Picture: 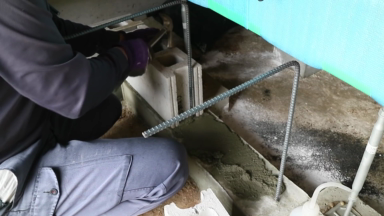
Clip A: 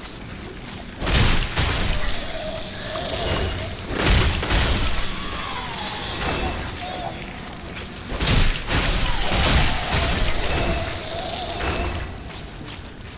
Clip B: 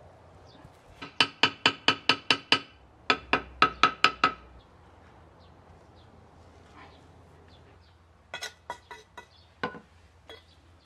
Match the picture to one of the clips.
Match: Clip B